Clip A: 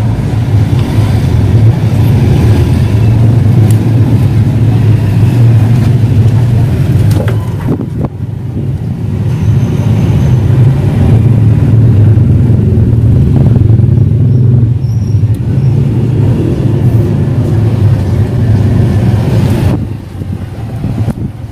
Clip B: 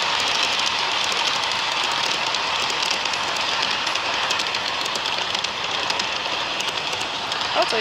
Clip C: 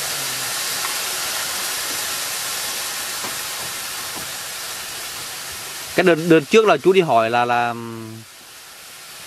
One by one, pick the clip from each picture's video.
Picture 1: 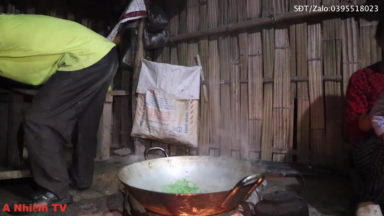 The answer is C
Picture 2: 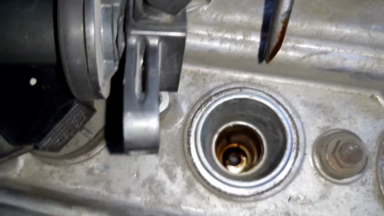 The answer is A